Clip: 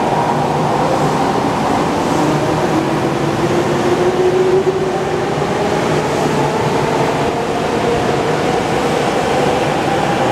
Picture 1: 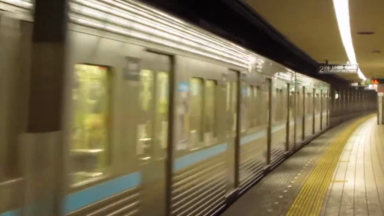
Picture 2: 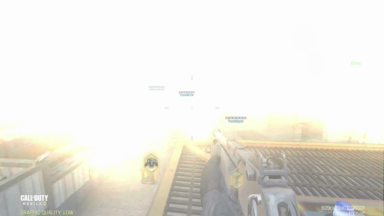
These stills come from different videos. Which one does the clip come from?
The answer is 1